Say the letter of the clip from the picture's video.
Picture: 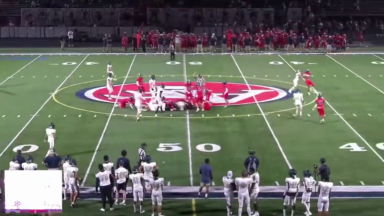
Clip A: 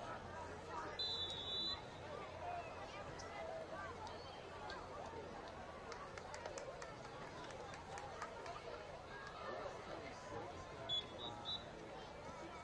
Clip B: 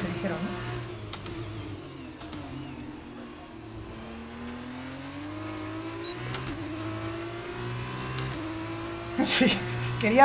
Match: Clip A